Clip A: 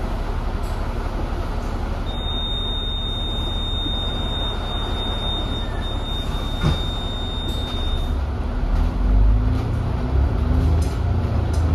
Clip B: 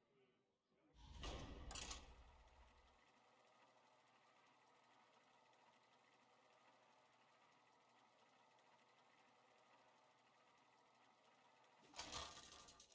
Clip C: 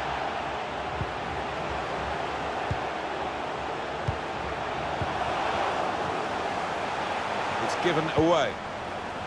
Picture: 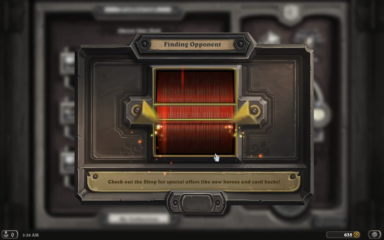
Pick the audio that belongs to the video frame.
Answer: B